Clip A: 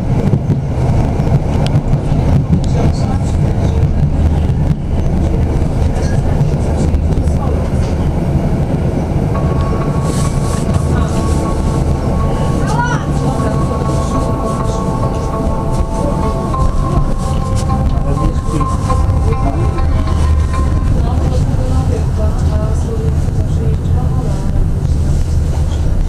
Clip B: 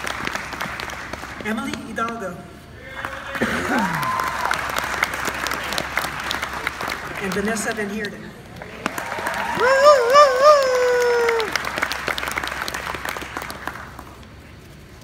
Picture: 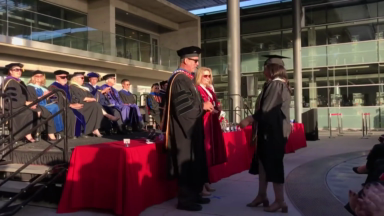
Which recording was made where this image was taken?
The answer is B